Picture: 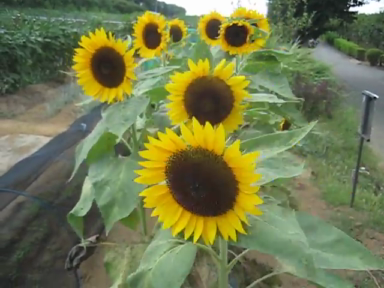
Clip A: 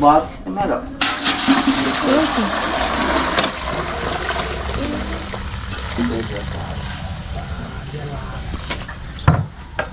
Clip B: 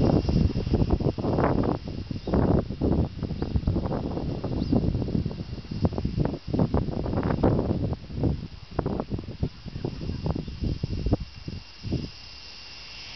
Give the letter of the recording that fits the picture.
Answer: B